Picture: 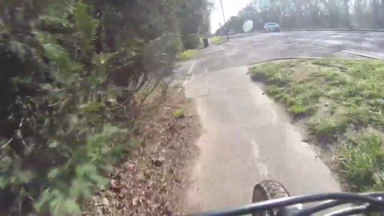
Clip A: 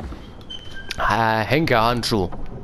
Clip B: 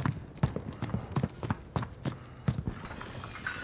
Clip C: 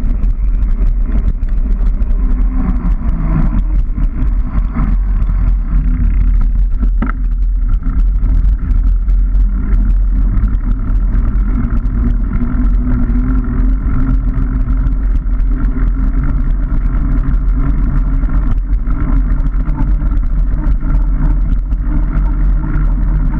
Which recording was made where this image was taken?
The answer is C